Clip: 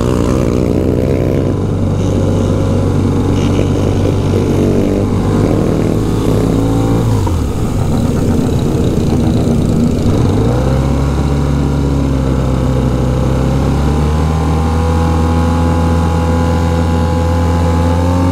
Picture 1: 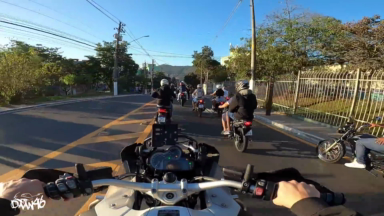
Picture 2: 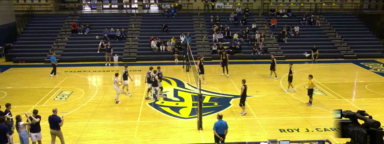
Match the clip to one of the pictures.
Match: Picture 1